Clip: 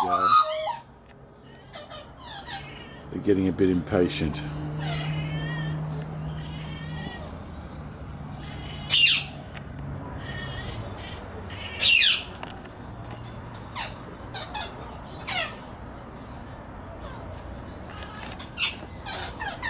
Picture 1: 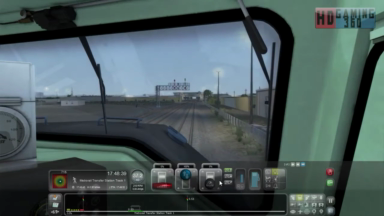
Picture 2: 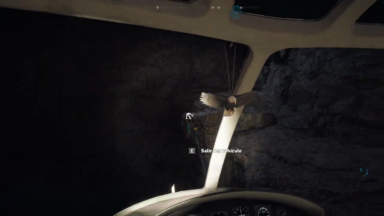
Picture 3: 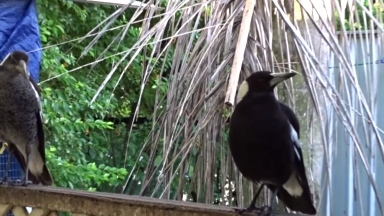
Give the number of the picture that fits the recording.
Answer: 3